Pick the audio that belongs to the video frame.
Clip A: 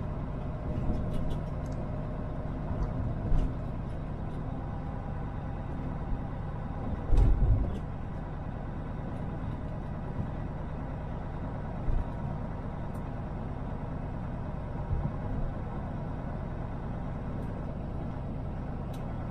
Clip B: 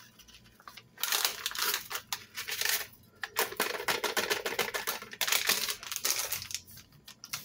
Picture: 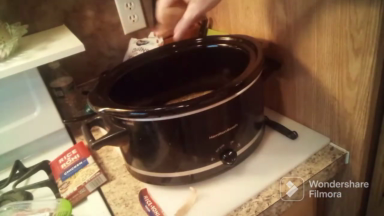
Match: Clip B